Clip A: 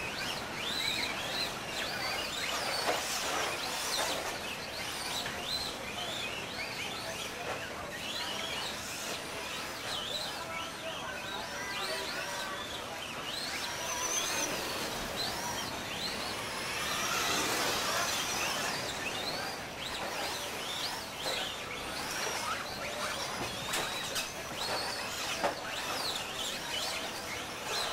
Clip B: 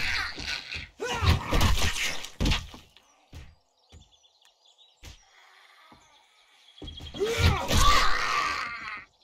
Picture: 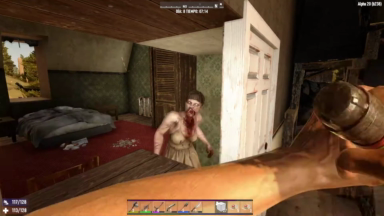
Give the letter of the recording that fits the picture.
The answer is B